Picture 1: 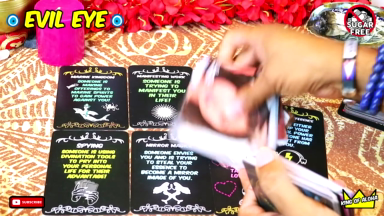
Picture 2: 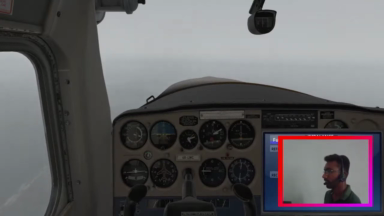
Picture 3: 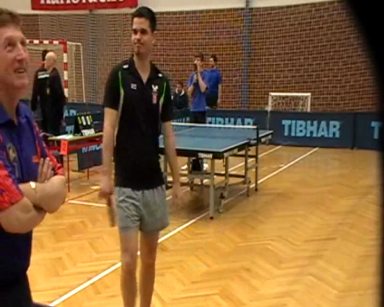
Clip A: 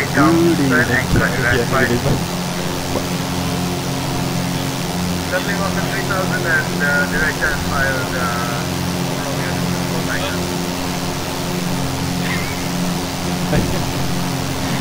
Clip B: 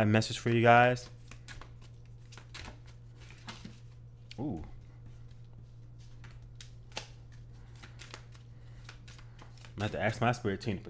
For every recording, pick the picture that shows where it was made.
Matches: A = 2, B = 1